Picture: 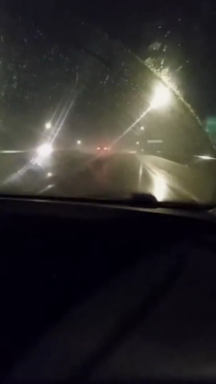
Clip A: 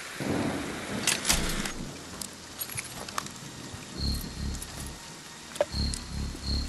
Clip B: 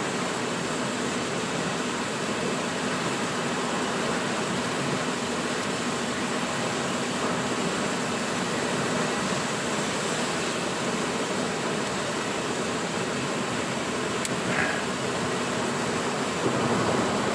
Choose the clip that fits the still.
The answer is B